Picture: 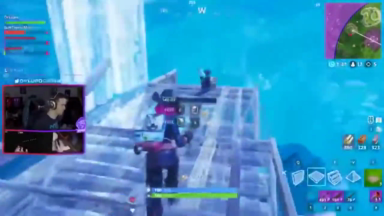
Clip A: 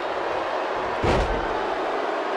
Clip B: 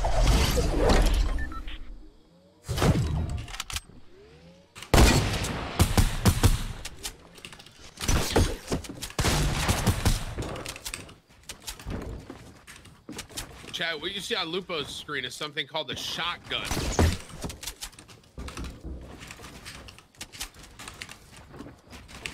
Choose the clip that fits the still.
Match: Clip B